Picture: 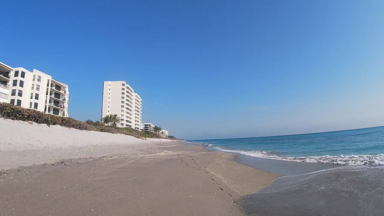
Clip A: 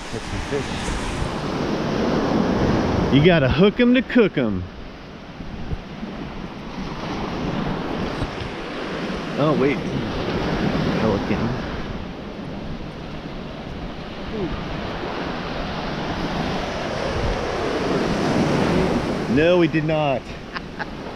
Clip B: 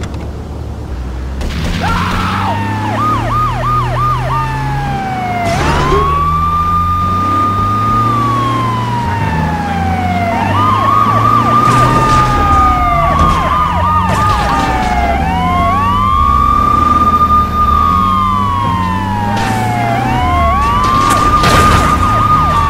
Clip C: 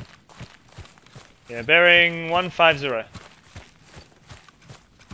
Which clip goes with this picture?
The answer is A